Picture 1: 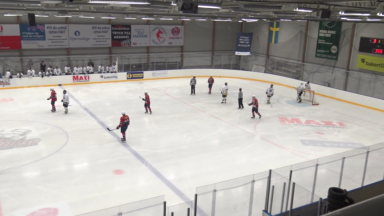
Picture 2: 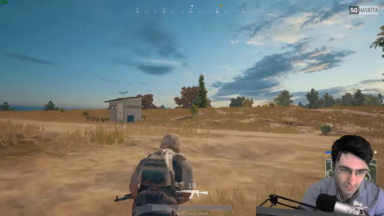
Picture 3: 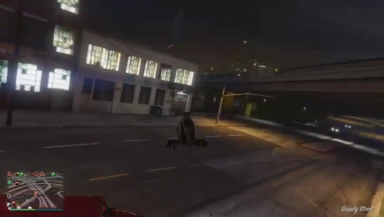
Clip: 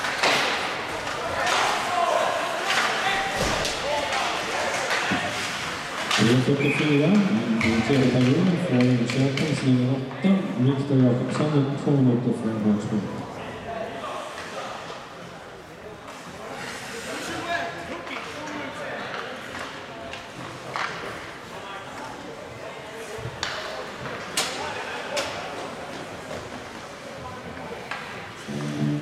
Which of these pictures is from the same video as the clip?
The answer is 1